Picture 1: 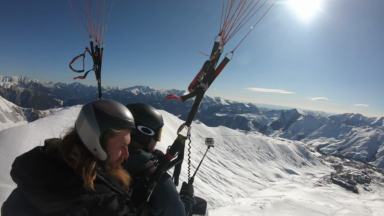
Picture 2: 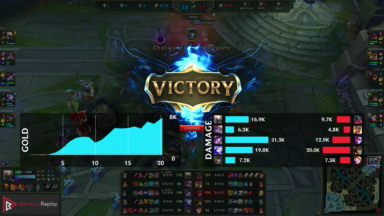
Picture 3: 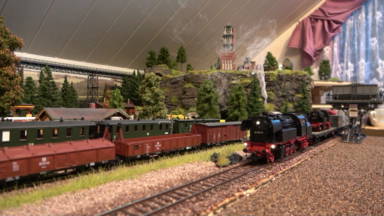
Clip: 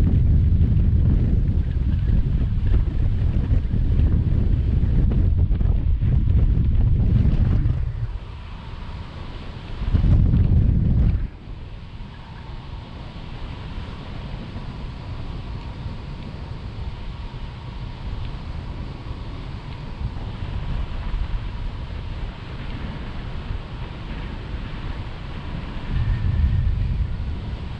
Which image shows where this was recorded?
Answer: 1